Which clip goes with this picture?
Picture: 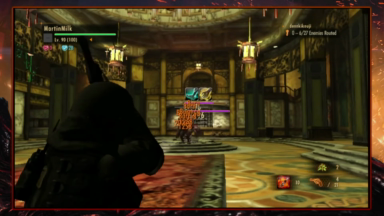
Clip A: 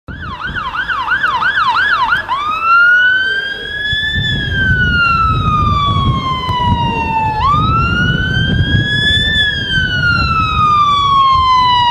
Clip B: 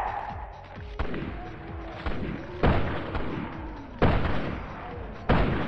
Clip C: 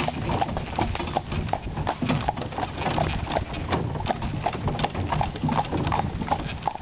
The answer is B